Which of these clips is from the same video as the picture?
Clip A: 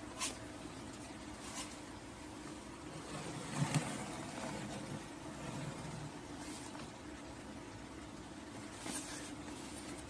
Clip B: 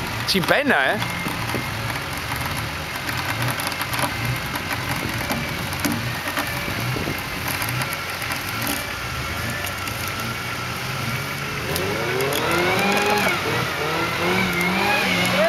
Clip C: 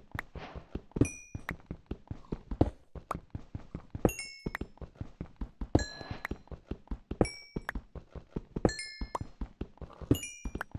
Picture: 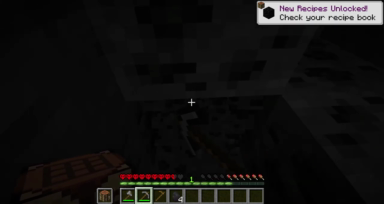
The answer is C